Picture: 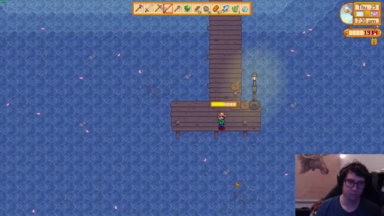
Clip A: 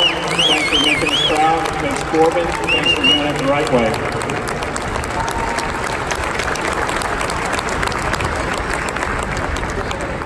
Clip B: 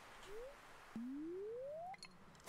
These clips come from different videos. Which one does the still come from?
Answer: B